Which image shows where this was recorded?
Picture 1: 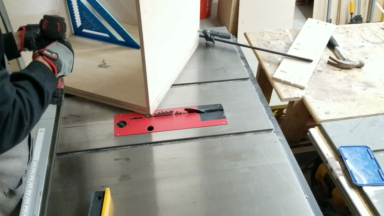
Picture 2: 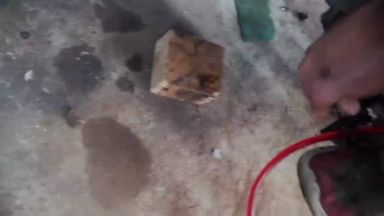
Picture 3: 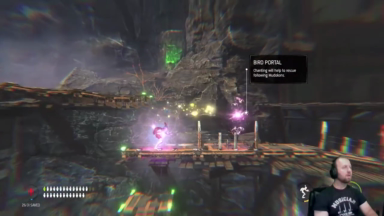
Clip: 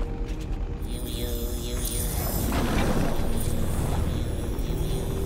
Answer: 3